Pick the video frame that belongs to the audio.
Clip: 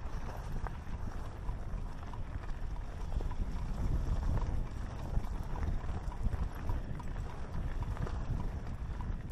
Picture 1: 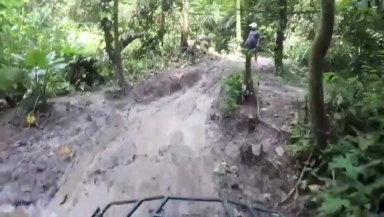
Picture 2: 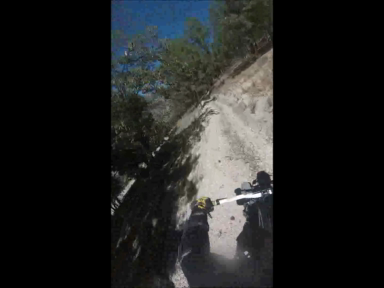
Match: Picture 2